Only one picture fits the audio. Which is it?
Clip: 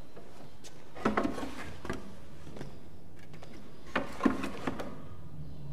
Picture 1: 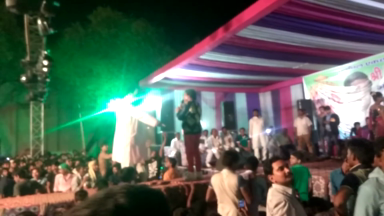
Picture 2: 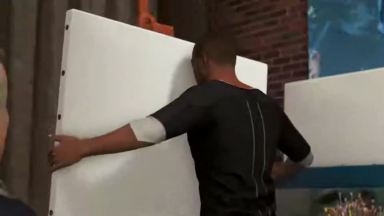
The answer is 2